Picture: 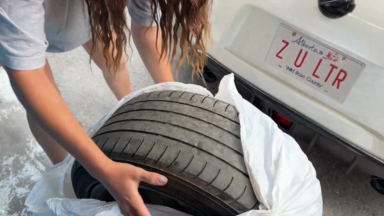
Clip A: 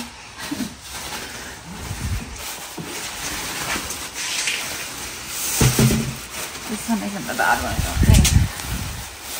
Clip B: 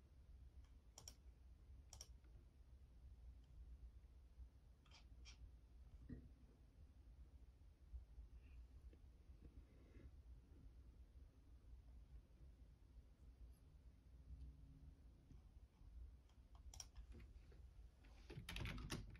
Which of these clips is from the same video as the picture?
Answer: A